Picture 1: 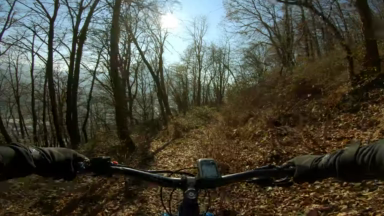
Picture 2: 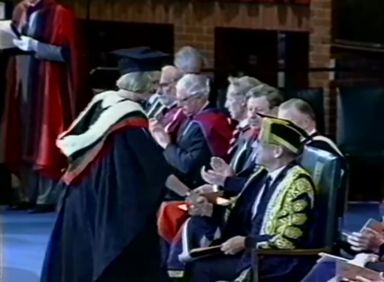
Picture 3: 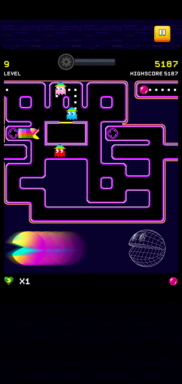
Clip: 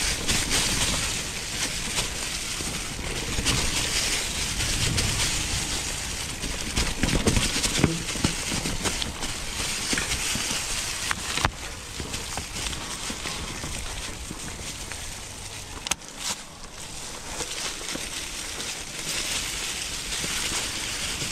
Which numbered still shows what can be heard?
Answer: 1